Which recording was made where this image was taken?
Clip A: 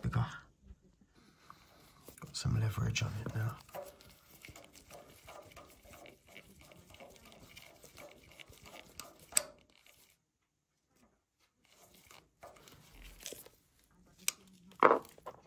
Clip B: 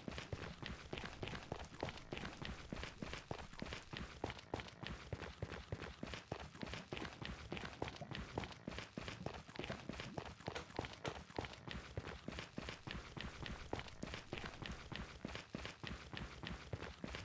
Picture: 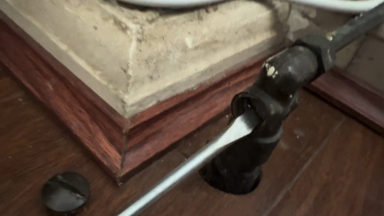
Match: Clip A